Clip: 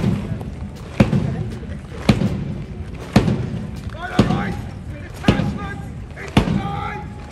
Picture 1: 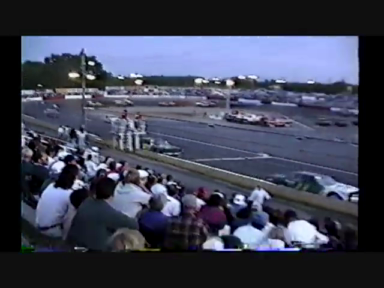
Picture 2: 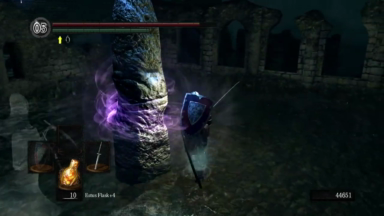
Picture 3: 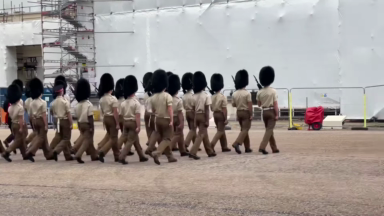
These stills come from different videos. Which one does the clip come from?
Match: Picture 3